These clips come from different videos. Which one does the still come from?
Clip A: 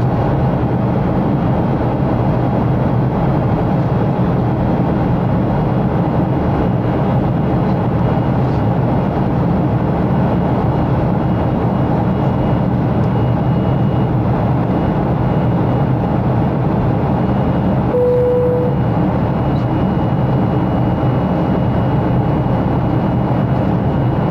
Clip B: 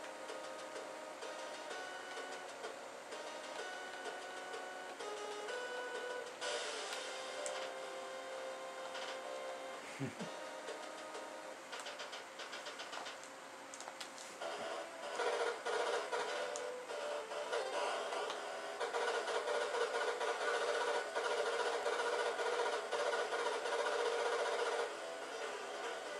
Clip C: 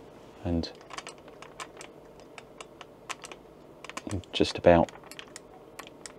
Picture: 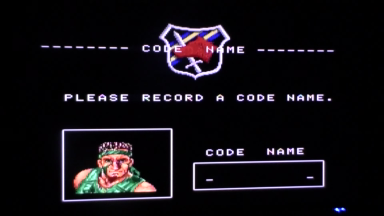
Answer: B